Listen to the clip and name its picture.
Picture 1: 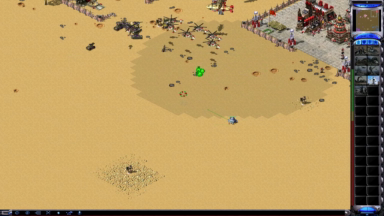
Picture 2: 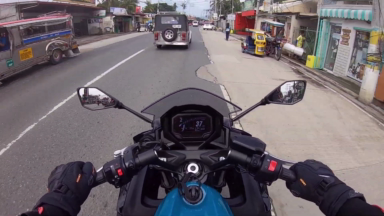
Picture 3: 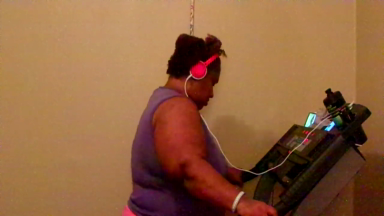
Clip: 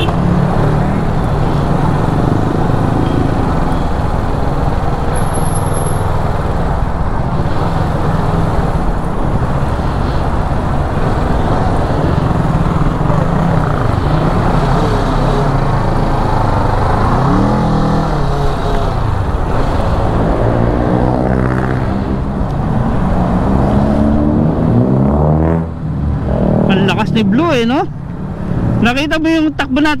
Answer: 2